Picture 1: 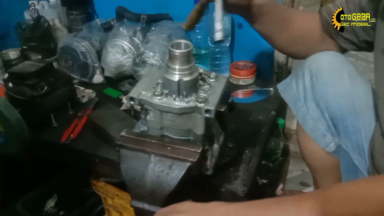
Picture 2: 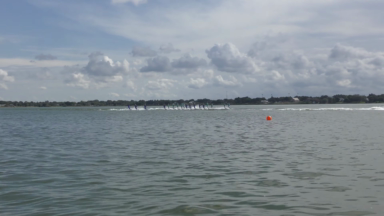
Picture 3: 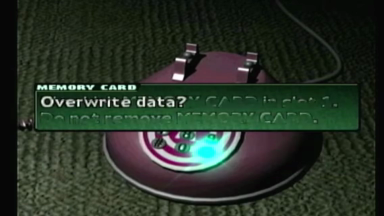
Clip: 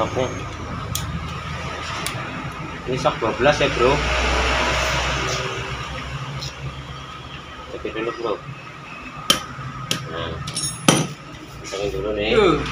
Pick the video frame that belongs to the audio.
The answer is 1